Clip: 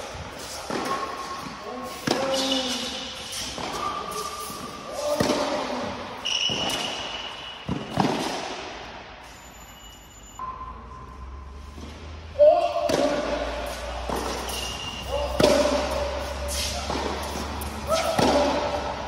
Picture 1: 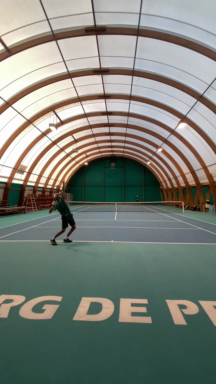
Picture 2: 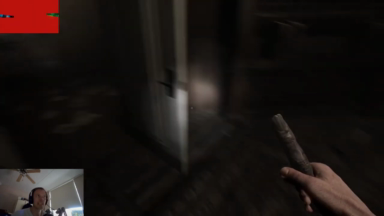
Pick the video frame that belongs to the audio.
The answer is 1